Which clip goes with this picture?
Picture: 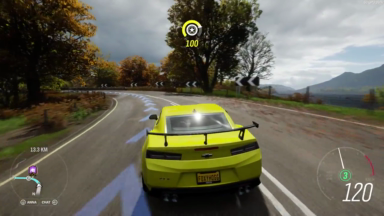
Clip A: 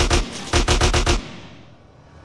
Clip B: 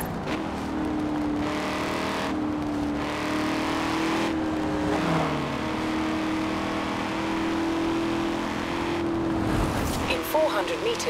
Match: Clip B